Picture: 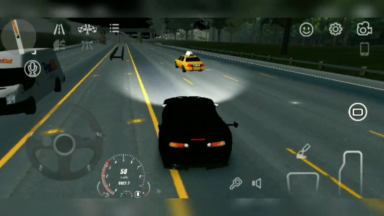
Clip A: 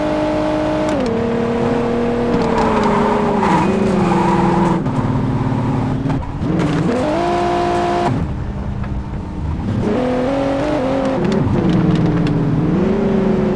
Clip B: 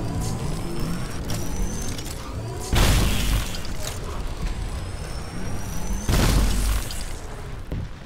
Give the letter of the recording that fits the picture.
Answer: A